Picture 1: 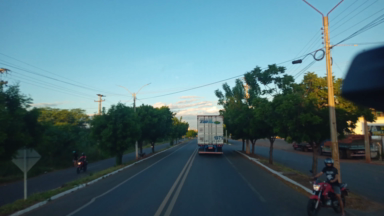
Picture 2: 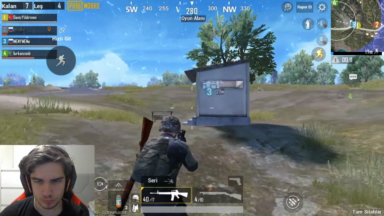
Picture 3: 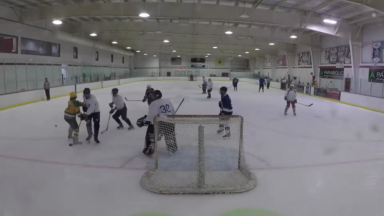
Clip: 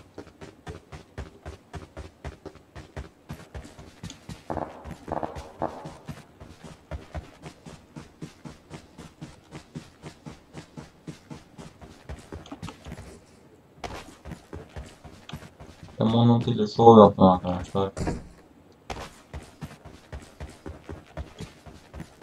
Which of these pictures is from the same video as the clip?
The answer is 2